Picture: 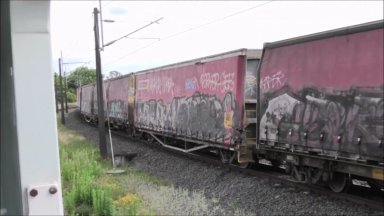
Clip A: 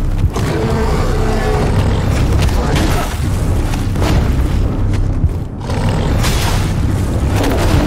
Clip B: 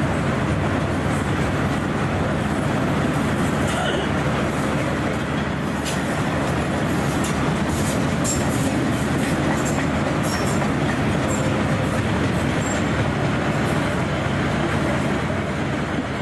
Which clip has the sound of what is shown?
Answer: B